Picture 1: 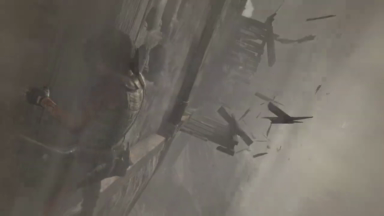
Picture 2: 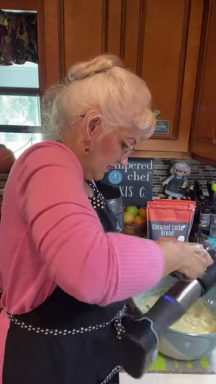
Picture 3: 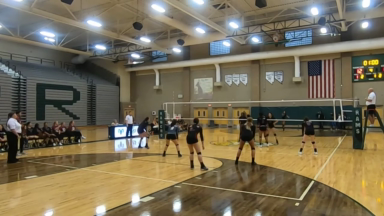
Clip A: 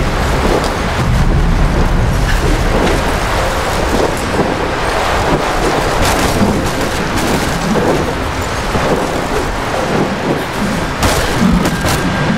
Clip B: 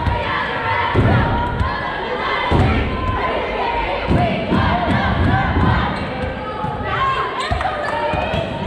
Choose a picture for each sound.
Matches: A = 1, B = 3